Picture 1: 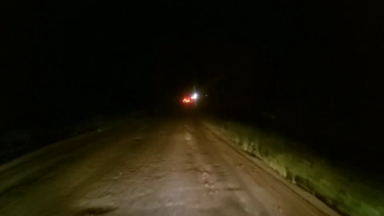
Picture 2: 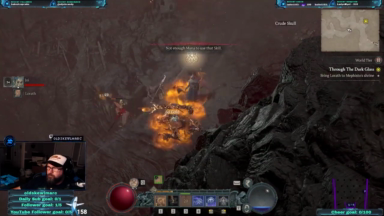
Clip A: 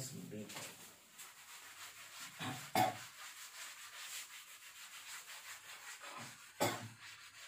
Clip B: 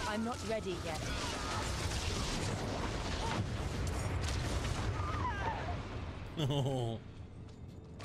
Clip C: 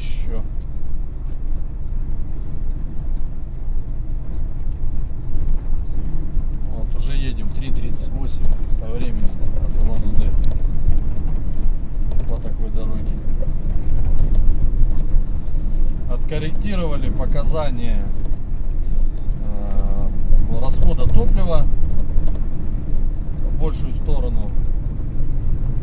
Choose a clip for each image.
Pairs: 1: C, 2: B